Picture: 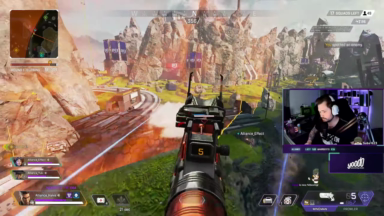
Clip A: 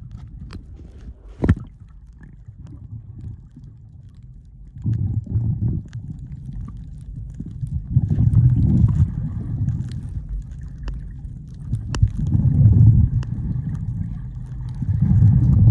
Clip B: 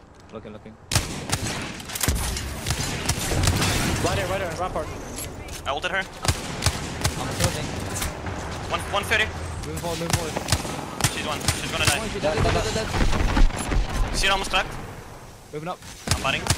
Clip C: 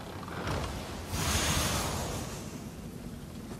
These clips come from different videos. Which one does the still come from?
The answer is B